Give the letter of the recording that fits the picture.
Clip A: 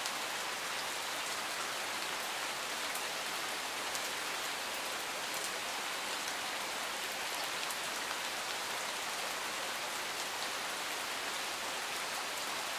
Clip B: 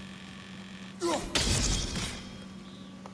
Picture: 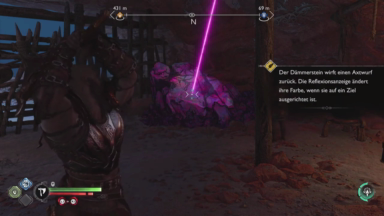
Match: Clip B